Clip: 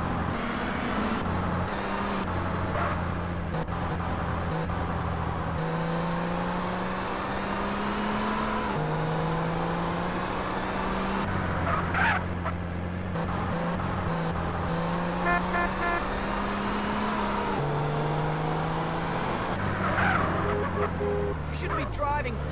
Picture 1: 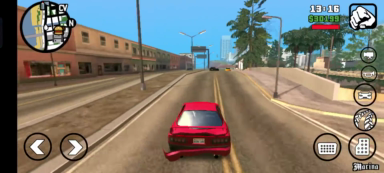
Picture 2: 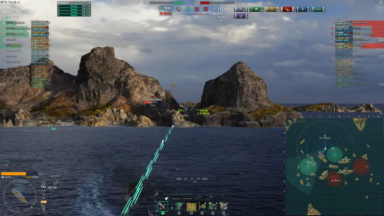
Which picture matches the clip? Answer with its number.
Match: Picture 1